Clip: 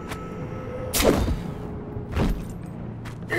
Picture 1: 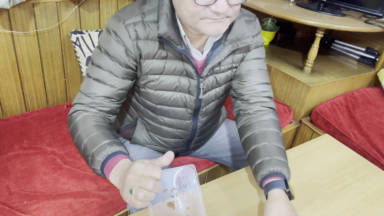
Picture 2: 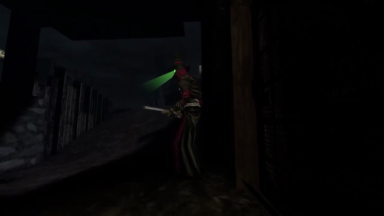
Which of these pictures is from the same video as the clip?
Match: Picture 2